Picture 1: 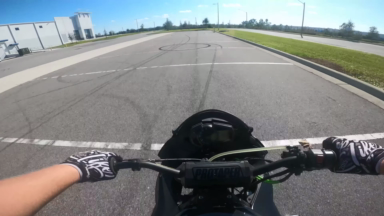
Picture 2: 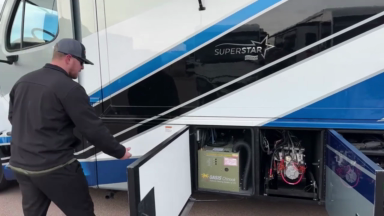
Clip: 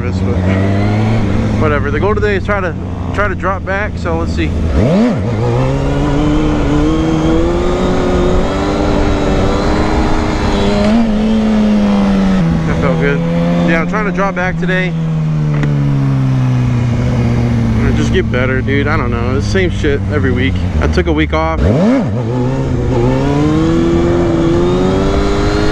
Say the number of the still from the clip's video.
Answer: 1